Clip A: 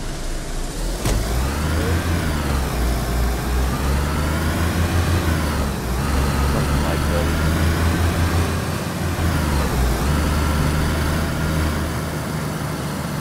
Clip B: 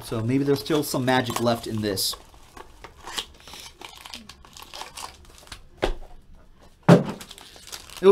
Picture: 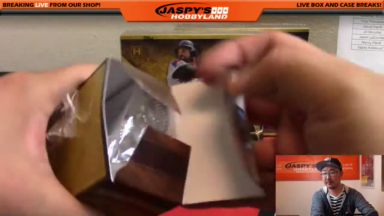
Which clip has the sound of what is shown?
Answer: B